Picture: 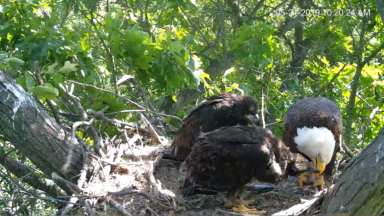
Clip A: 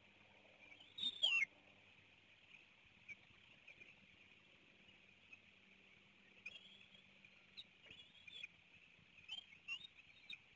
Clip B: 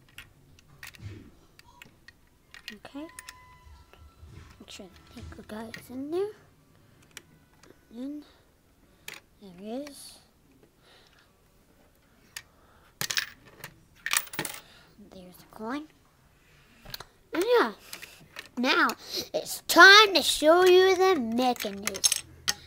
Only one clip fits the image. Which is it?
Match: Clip A